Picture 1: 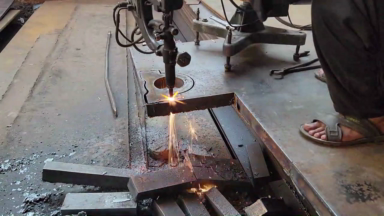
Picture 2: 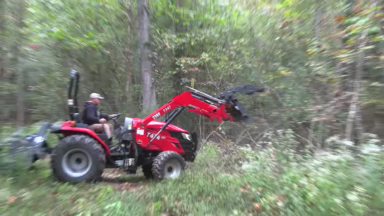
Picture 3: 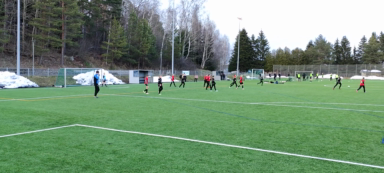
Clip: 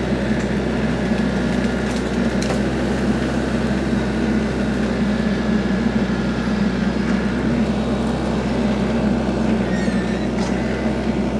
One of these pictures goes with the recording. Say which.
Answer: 2